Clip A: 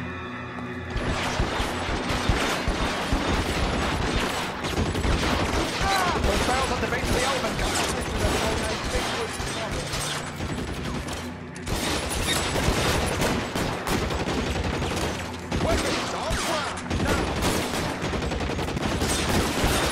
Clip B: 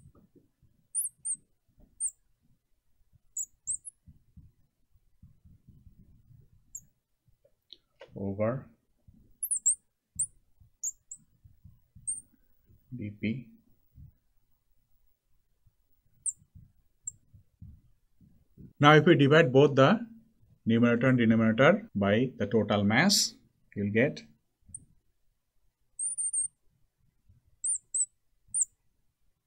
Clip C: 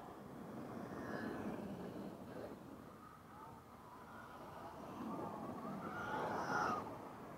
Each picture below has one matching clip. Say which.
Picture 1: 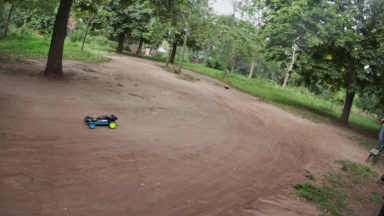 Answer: C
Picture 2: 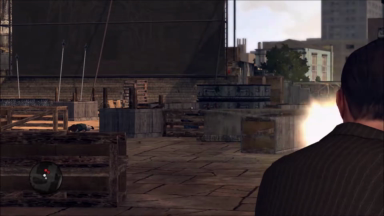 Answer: A